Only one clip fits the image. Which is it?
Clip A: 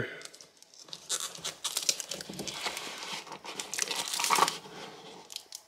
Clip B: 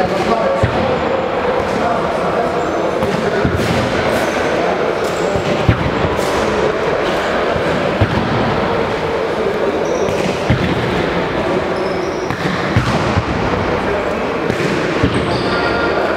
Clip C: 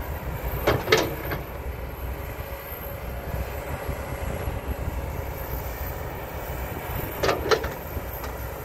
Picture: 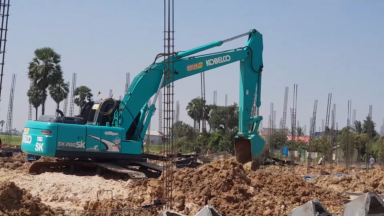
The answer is C